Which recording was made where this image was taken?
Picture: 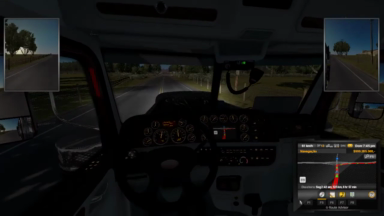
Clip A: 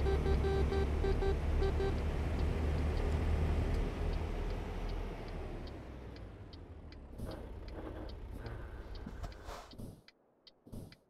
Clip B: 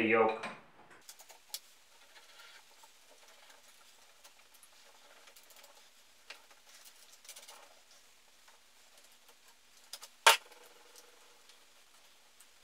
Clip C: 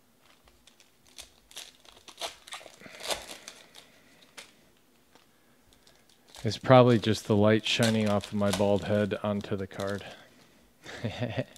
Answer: A